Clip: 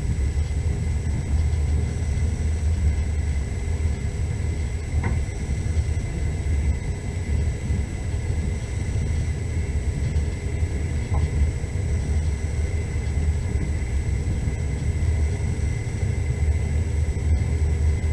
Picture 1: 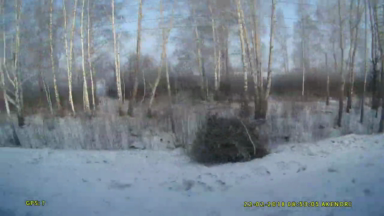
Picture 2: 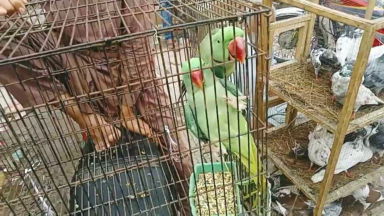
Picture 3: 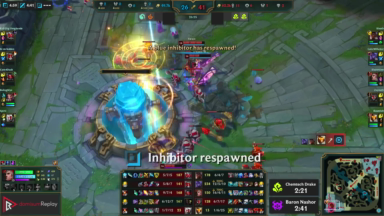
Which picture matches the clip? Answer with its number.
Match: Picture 1